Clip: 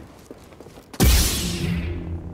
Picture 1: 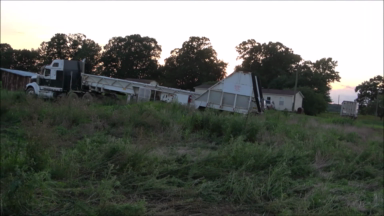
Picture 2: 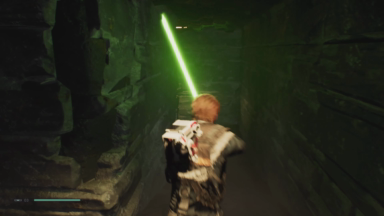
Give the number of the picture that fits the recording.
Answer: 2